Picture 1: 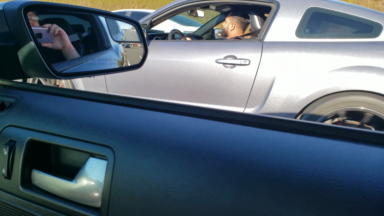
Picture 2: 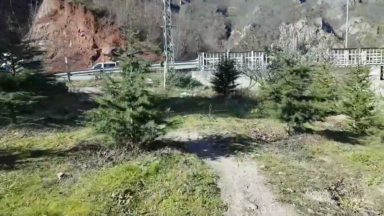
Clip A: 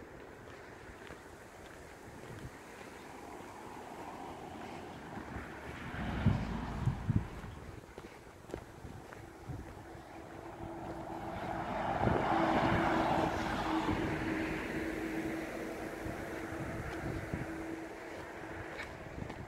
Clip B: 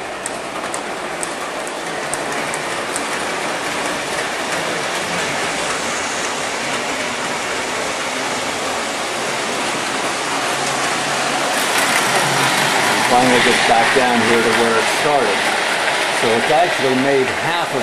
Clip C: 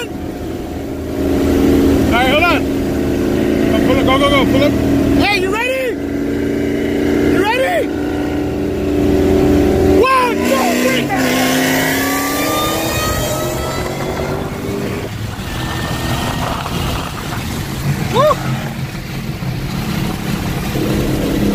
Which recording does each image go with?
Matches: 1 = C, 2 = A